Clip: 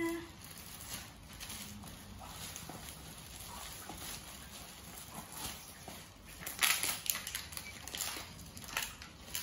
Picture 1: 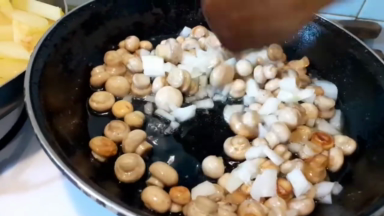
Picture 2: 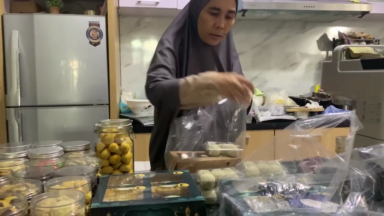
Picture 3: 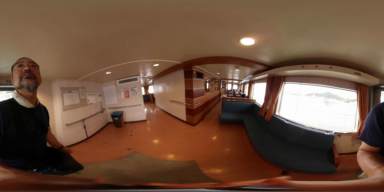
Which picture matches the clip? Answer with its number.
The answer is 2